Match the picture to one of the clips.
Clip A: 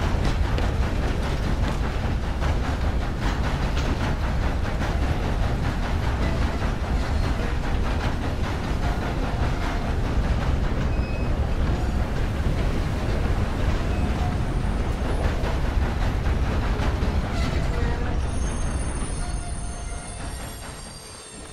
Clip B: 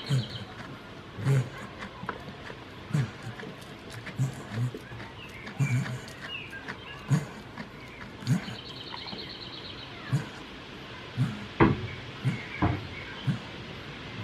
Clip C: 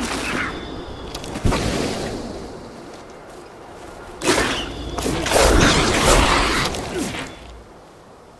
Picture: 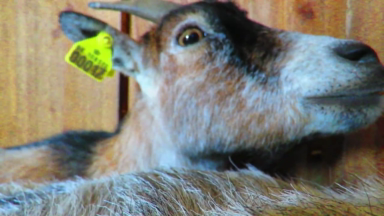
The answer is B